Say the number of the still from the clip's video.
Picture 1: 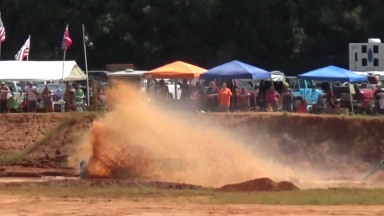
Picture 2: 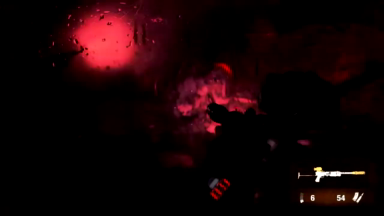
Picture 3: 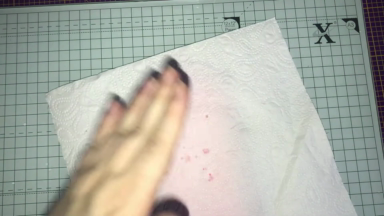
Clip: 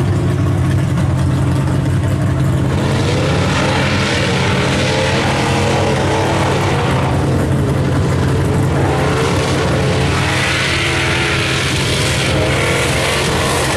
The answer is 1